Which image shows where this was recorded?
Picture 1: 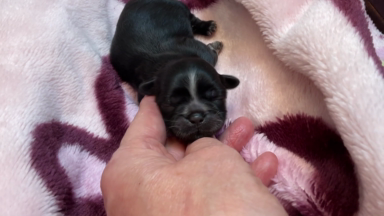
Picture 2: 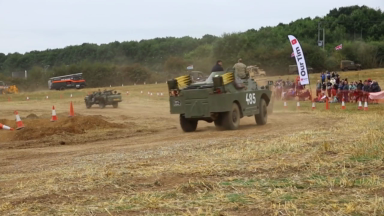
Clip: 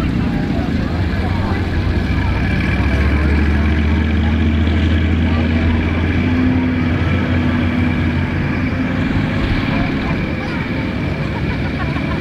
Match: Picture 2